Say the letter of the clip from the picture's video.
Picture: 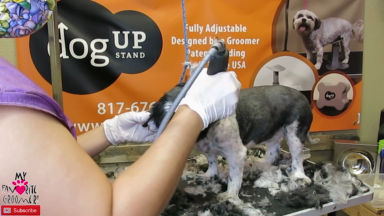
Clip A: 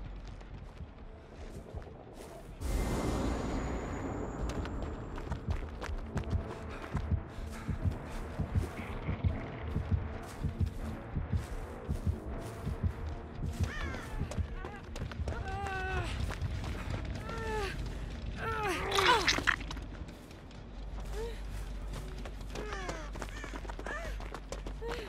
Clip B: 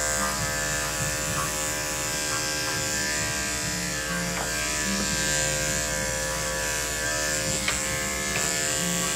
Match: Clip B